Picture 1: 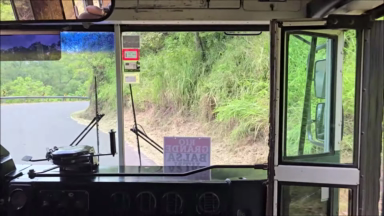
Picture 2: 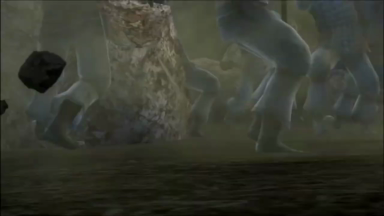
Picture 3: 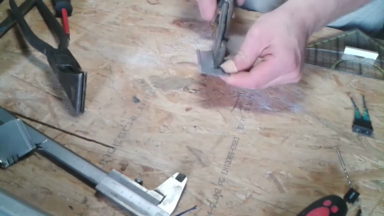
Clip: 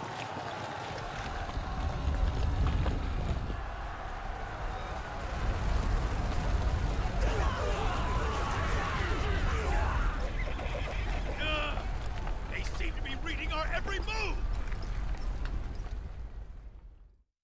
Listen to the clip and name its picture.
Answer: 2